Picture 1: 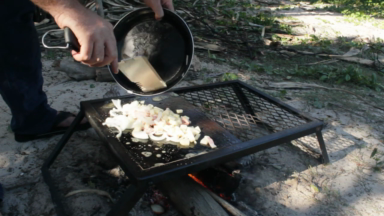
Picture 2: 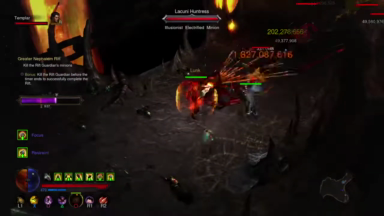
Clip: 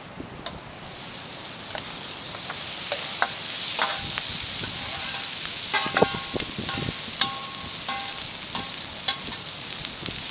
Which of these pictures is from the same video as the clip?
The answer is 1